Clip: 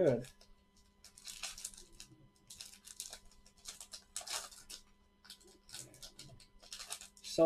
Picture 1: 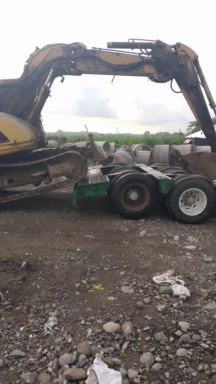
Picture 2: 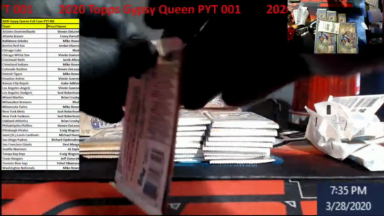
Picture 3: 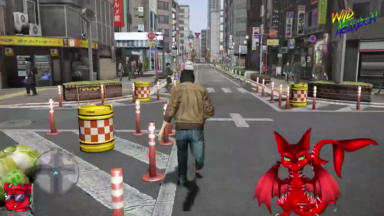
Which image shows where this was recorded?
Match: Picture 2